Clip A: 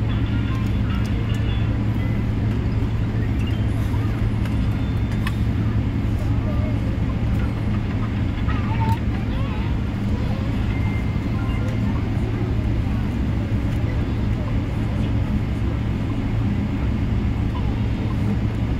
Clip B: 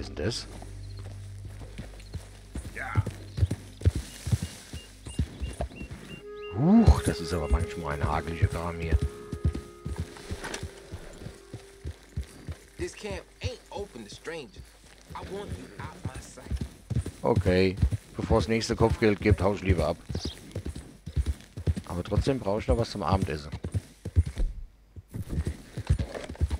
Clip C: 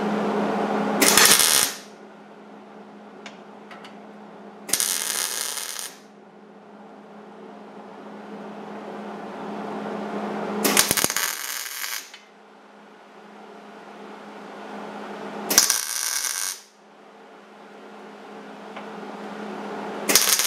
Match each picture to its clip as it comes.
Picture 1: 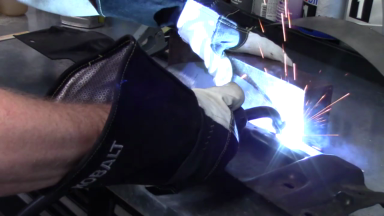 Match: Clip C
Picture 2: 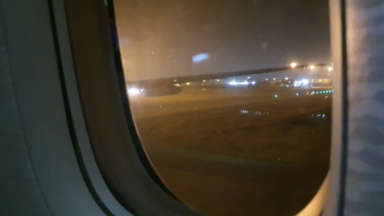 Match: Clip A